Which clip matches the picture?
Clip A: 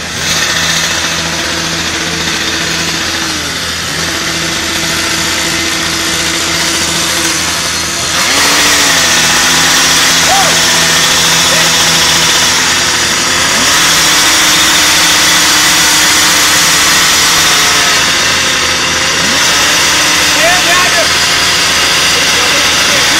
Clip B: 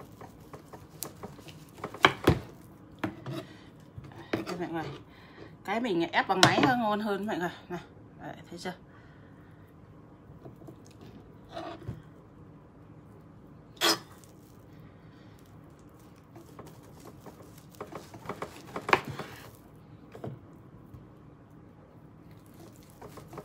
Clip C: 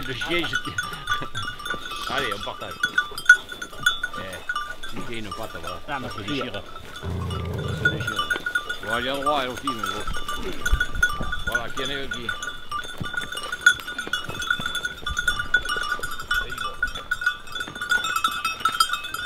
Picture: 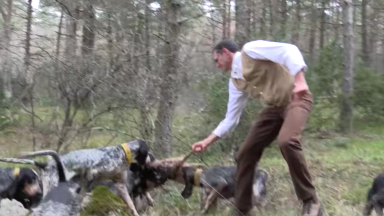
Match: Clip C